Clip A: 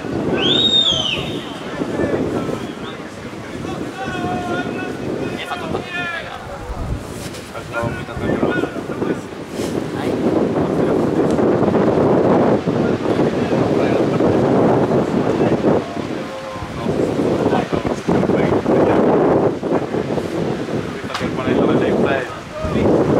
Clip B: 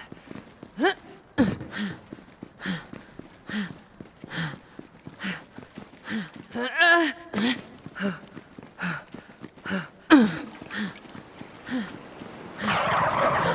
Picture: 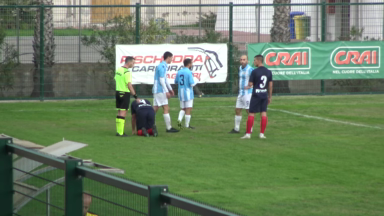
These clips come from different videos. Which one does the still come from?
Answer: A